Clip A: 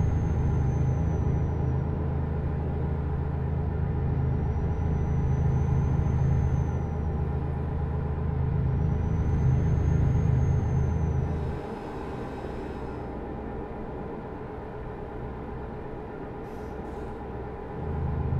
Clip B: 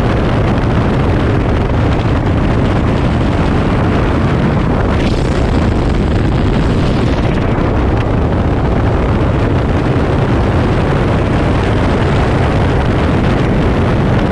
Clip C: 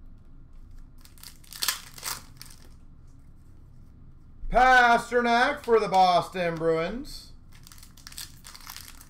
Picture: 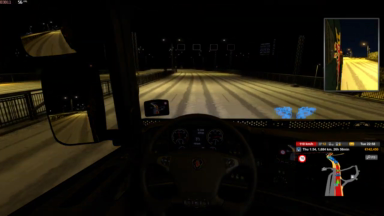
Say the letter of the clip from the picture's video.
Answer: A